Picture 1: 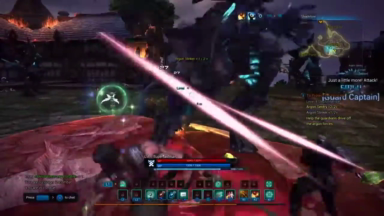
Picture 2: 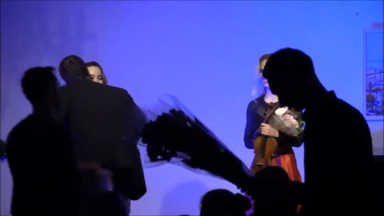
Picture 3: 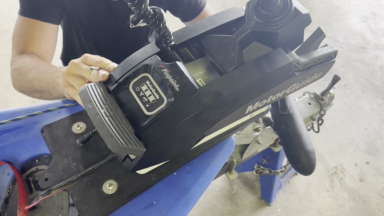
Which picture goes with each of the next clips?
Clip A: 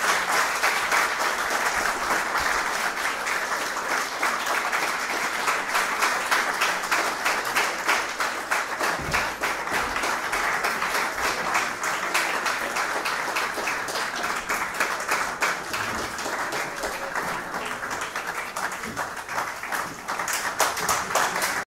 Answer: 2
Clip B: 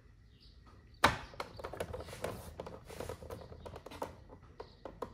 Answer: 3